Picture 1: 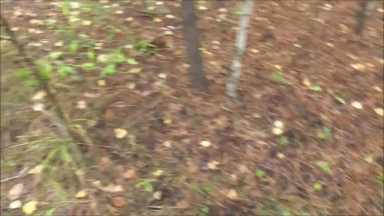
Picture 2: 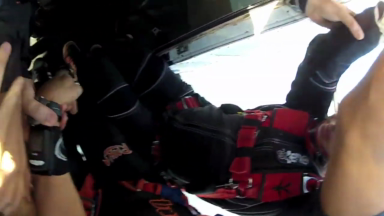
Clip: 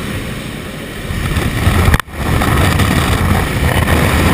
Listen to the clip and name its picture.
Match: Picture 2